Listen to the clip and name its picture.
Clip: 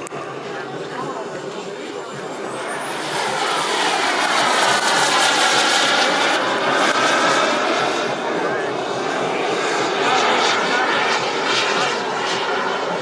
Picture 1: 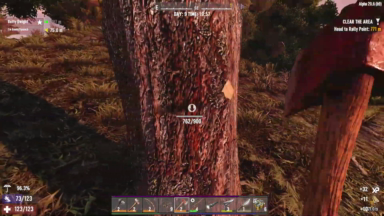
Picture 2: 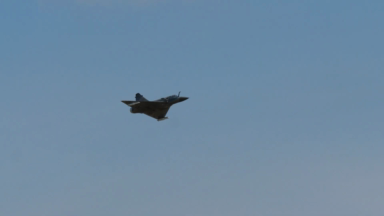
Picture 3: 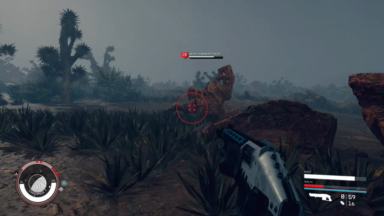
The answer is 2